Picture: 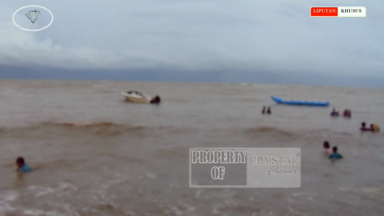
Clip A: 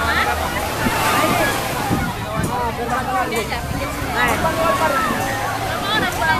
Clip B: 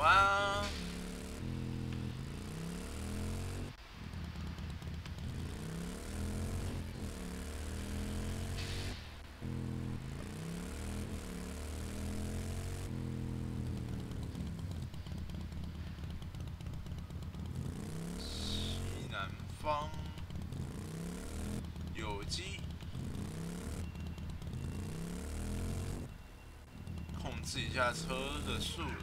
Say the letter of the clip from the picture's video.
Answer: A